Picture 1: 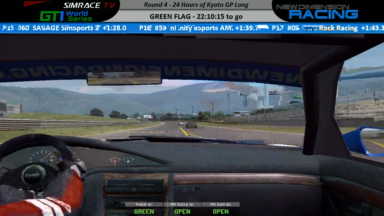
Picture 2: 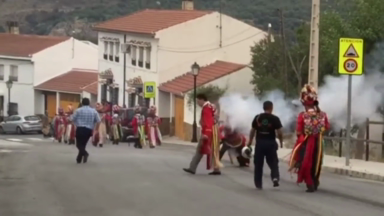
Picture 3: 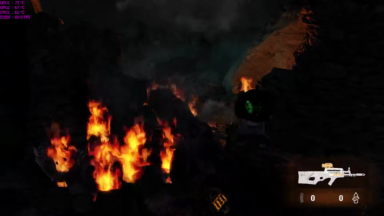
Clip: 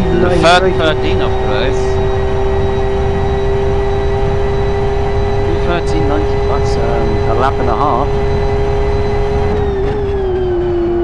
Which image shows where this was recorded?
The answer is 1